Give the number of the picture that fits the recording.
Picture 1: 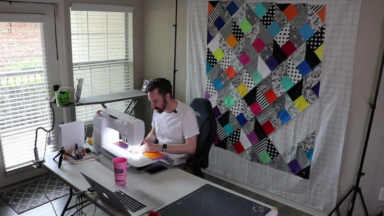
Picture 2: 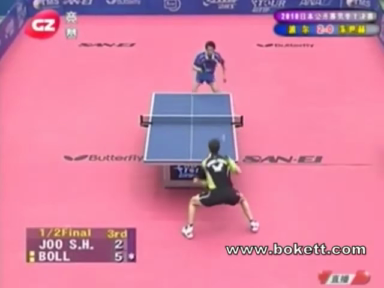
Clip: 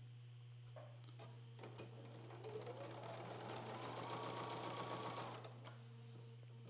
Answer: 1